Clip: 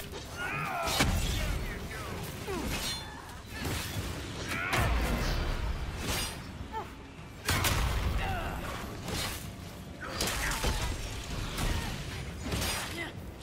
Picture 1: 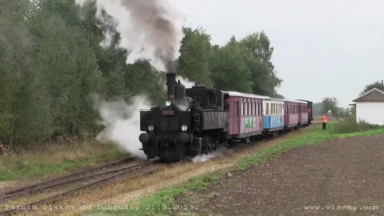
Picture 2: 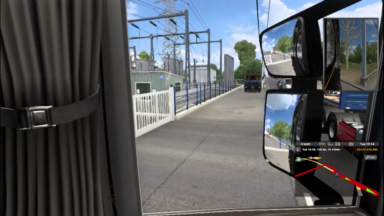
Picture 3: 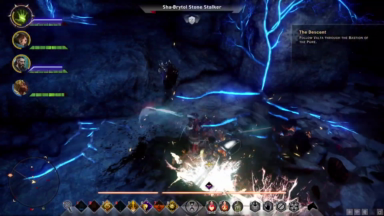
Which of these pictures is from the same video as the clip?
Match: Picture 3